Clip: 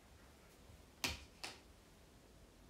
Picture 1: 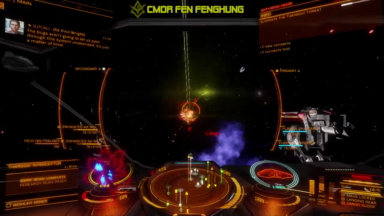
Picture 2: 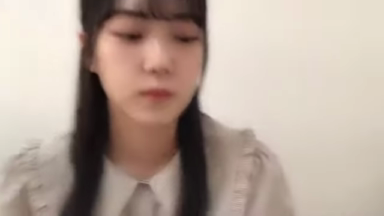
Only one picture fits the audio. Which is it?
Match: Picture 2